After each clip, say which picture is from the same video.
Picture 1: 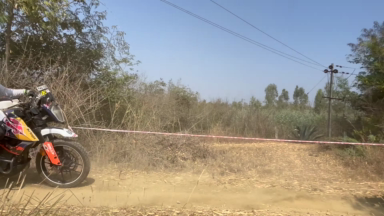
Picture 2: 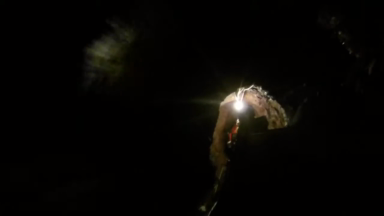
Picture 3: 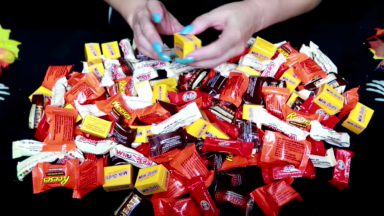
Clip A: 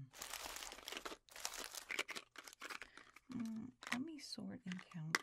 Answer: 3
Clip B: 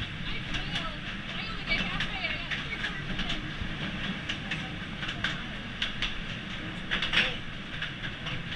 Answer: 2